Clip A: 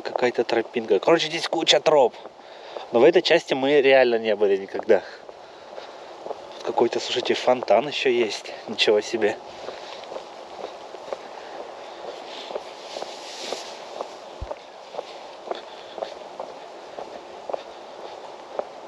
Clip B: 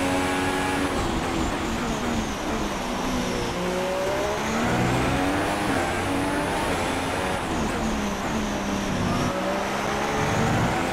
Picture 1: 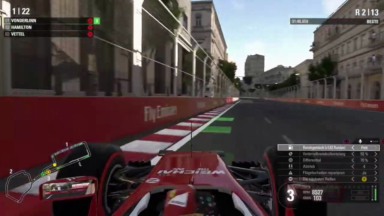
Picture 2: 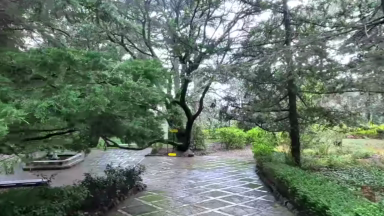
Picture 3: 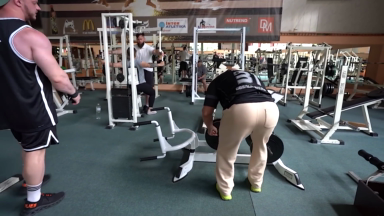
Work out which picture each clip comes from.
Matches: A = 2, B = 1